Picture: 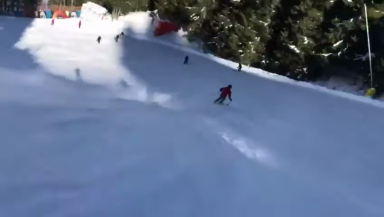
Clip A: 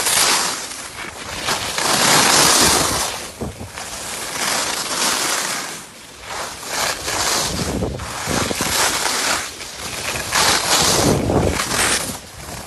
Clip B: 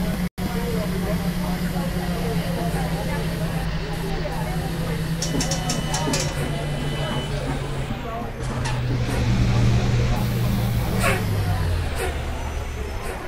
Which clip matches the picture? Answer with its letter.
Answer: A